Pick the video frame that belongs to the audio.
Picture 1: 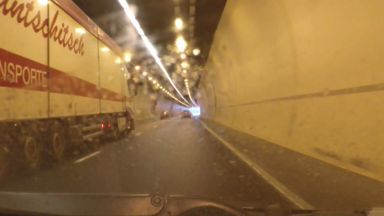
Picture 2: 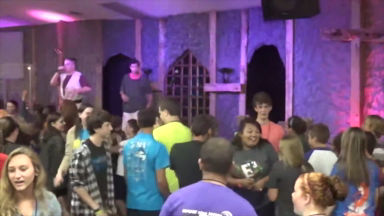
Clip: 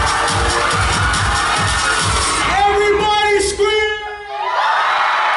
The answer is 2